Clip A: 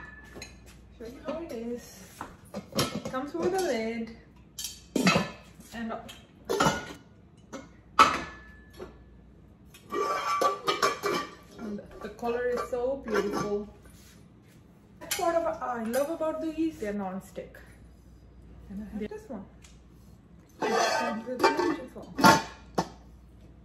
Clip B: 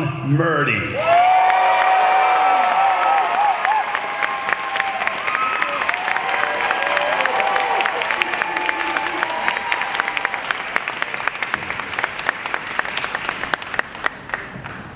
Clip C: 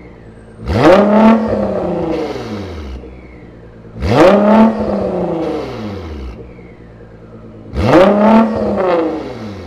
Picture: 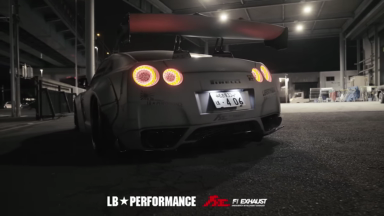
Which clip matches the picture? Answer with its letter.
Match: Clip C